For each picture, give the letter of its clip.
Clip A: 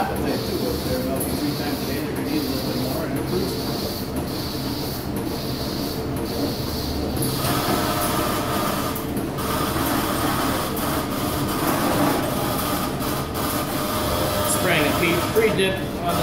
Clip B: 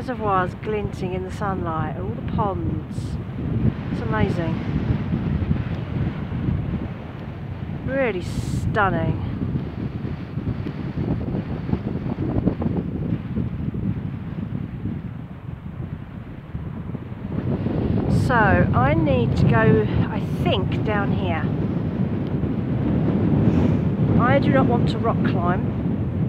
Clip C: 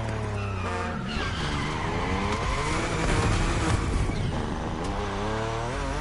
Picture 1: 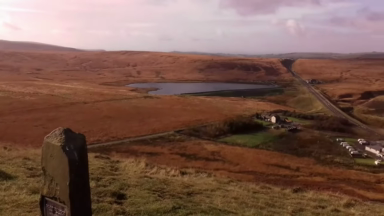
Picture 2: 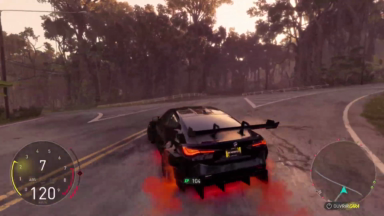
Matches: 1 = B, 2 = C